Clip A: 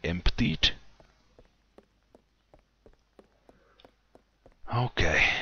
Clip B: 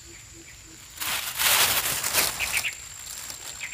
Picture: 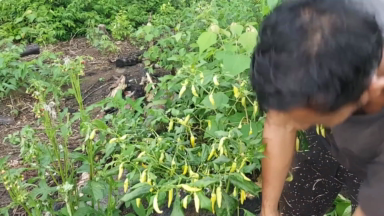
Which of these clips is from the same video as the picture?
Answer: B